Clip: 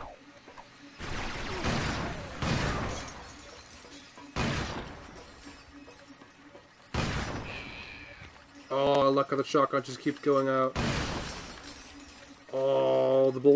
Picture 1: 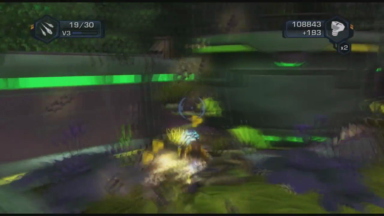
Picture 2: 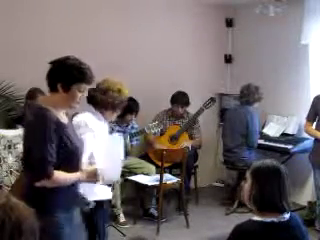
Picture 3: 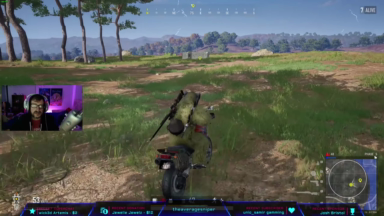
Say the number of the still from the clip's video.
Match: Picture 1